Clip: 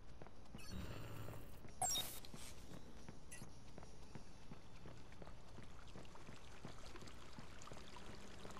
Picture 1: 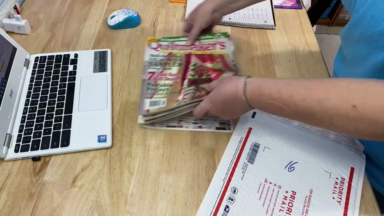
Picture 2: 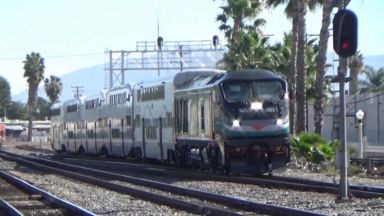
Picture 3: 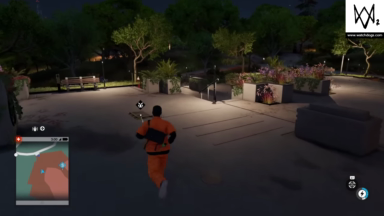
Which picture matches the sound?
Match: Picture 3